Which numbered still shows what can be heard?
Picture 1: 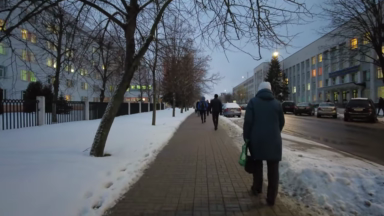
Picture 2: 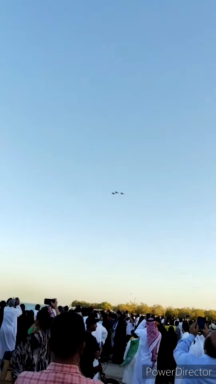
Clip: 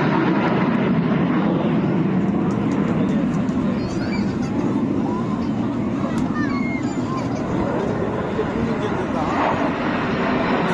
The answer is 2